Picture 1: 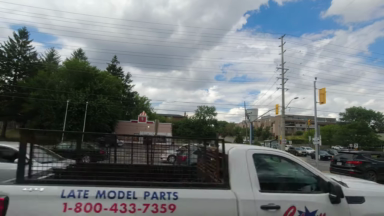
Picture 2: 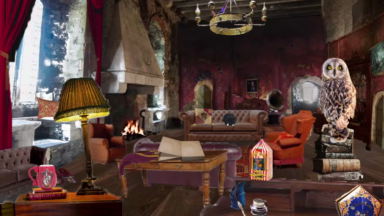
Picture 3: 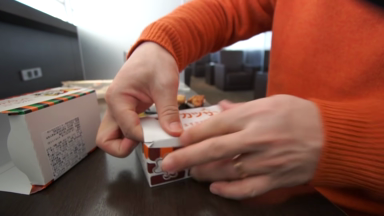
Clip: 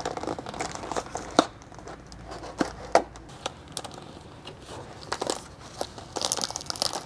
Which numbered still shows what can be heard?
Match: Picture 3